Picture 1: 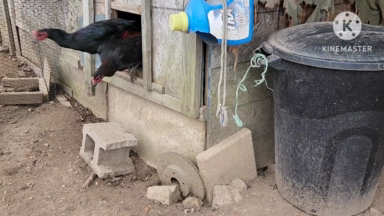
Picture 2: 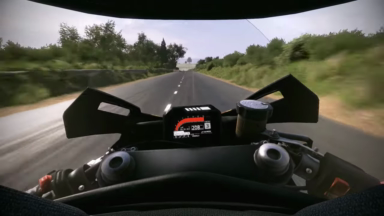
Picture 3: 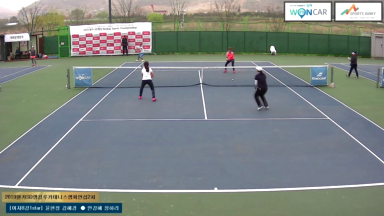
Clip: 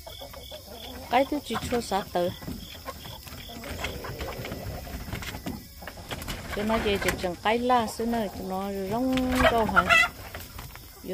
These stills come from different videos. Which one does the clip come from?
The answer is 1